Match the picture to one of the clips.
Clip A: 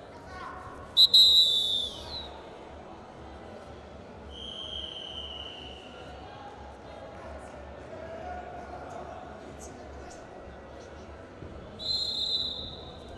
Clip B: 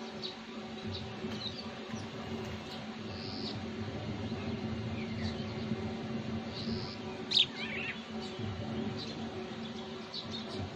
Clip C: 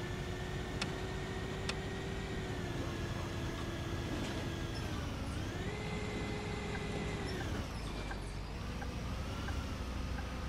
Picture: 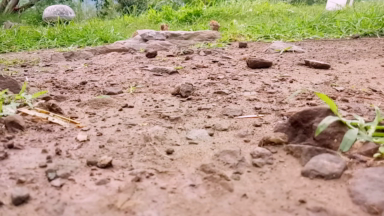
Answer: B